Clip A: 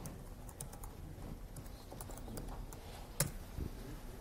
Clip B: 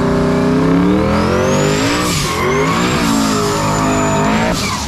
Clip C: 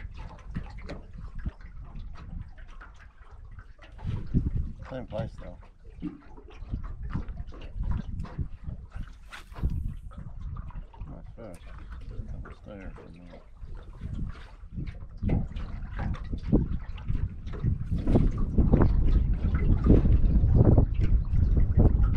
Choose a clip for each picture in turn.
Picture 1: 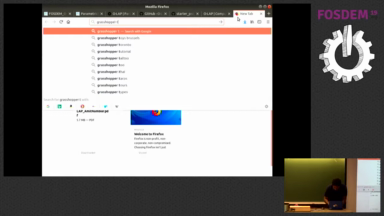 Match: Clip A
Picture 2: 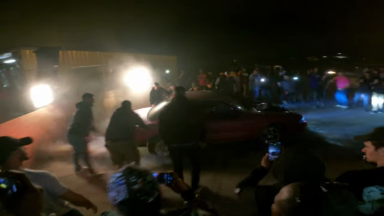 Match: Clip B